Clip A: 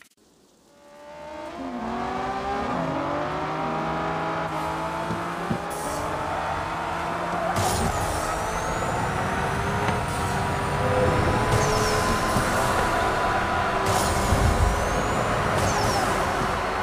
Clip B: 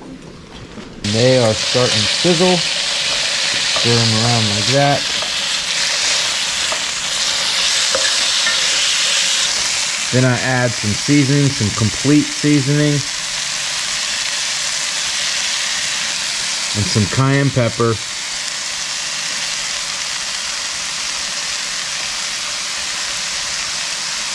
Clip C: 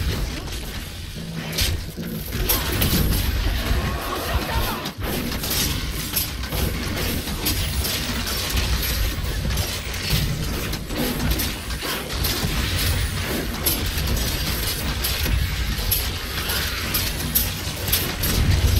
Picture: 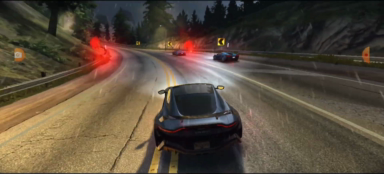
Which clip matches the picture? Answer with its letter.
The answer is A